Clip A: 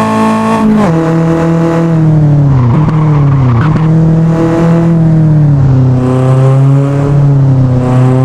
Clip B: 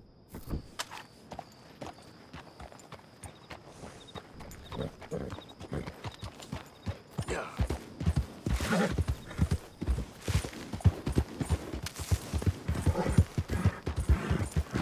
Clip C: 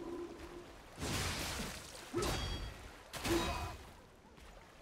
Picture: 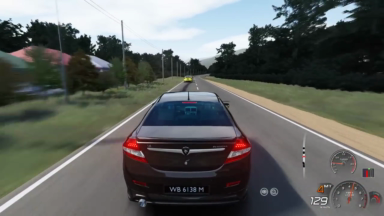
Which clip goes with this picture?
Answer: A